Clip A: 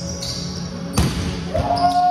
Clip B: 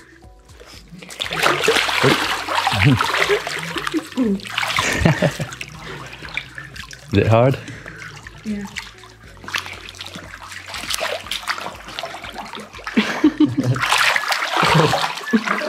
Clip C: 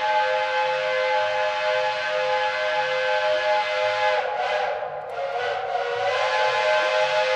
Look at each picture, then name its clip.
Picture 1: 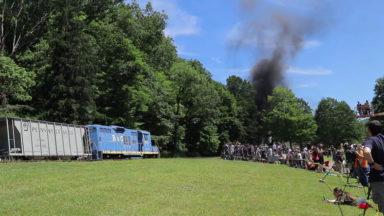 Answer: C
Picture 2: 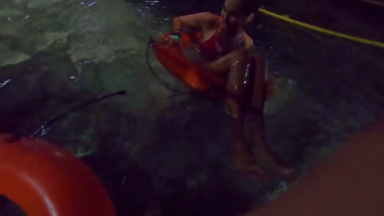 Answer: B